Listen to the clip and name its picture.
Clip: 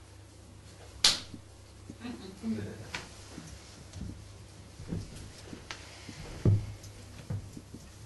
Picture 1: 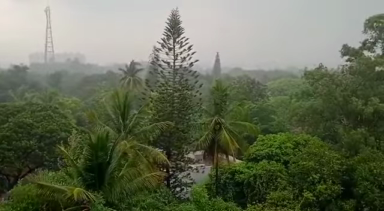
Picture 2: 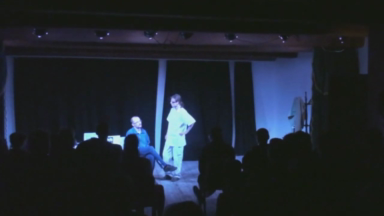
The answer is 2